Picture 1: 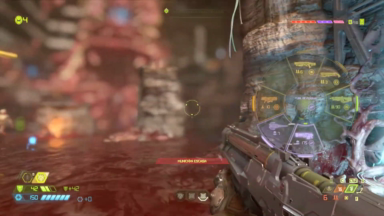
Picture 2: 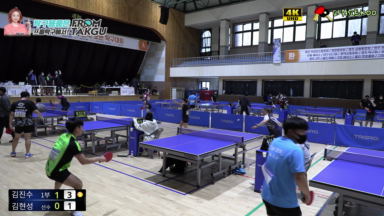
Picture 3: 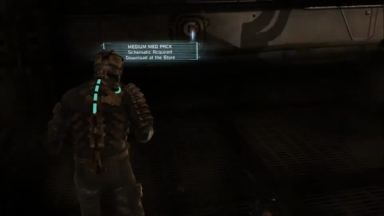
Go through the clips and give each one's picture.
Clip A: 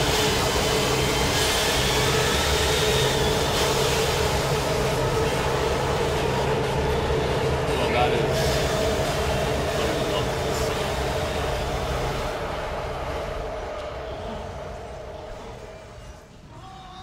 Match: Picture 3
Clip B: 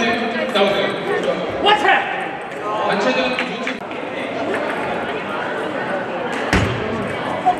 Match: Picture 2